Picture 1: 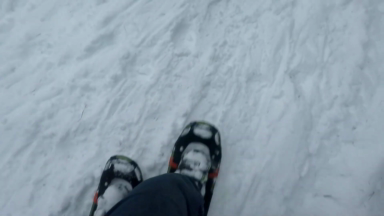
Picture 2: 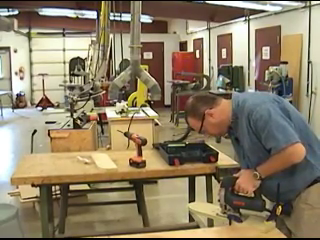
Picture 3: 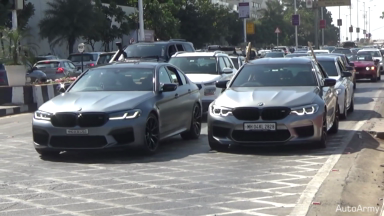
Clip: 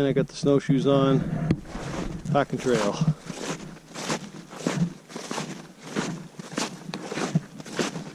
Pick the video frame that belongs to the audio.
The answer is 1